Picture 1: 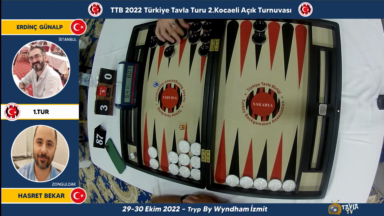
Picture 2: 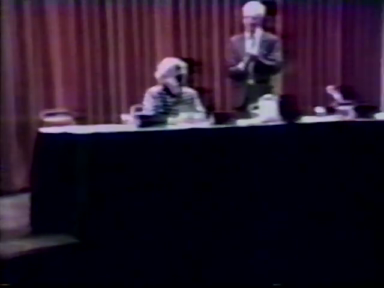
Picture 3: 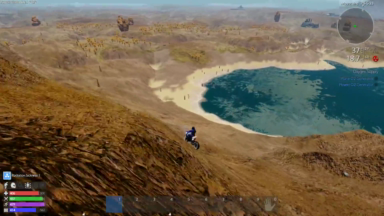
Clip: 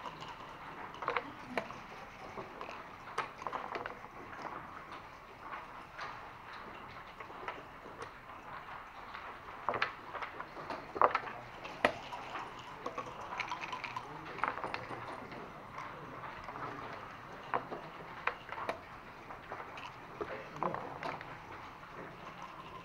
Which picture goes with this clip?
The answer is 1